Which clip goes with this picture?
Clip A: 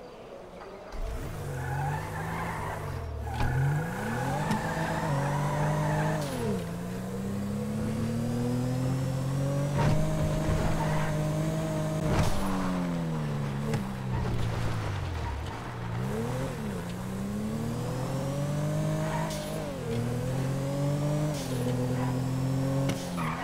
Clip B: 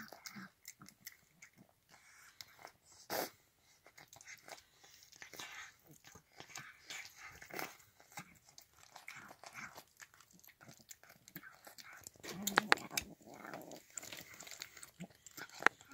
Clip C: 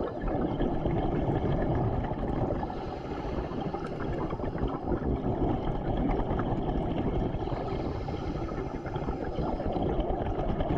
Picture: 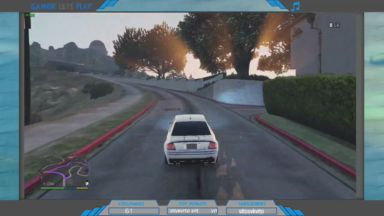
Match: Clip A